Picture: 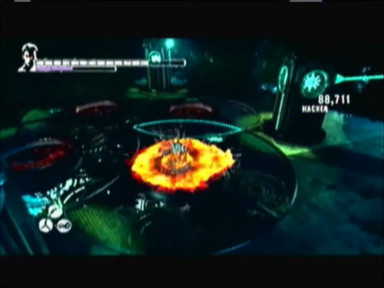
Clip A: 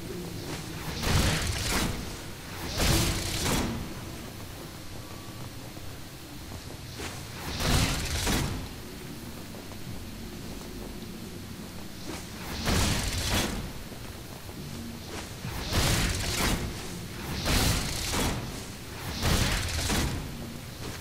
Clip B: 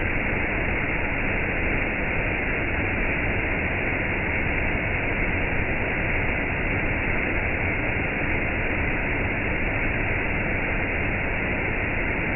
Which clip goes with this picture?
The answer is A